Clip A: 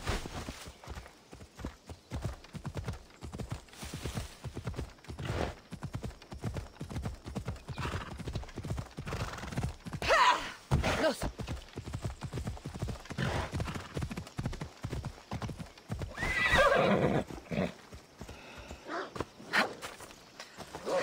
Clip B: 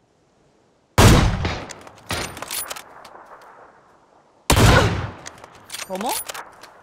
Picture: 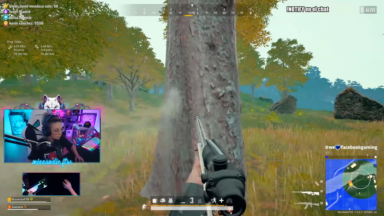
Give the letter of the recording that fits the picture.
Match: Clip B